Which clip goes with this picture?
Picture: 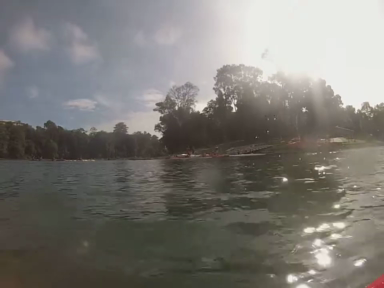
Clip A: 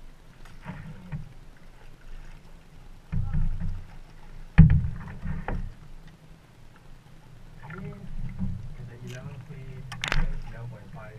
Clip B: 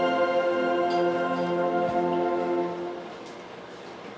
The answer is A